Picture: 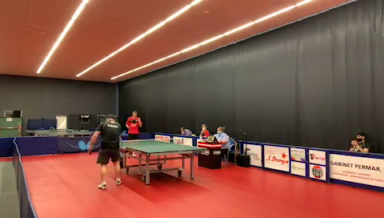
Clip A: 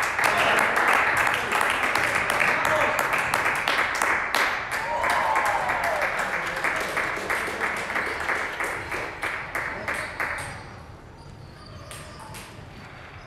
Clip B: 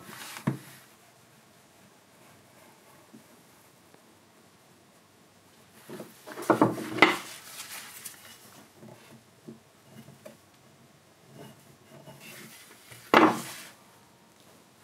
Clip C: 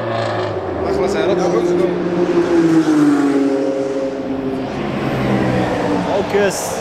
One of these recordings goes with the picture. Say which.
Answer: A